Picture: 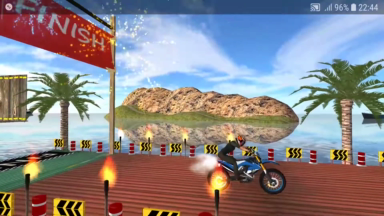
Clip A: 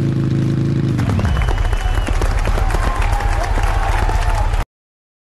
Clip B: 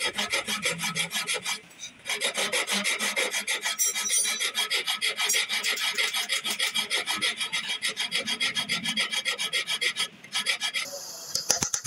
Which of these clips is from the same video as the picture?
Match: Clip A